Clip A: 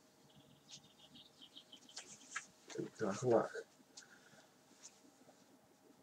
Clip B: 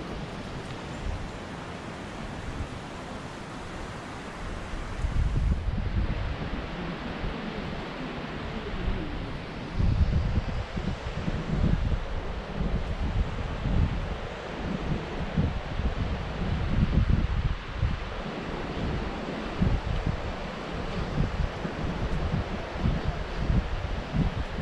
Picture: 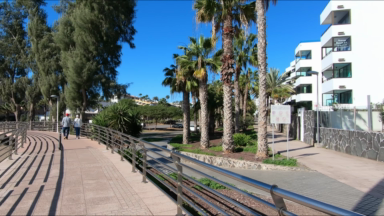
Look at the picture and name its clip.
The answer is B